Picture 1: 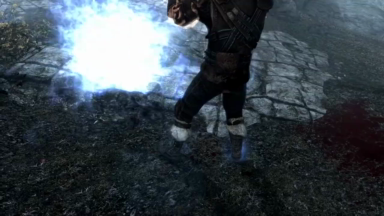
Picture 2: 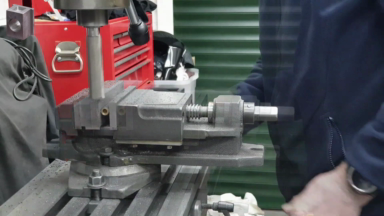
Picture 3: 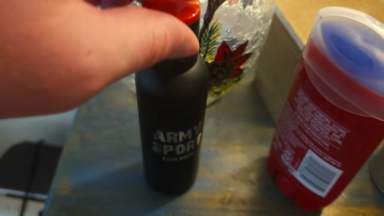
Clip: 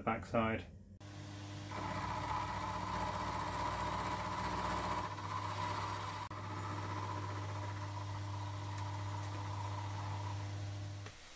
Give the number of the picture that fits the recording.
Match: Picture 2